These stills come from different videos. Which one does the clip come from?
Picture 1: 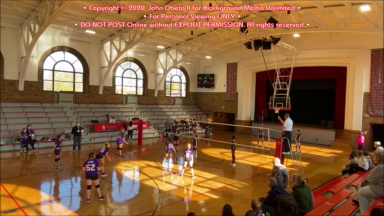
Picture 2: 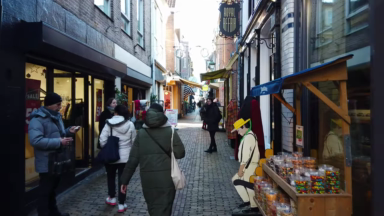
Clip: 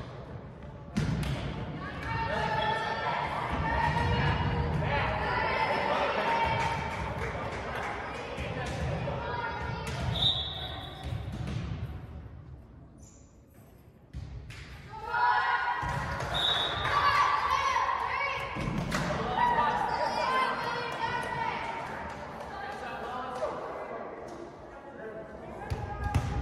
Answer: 1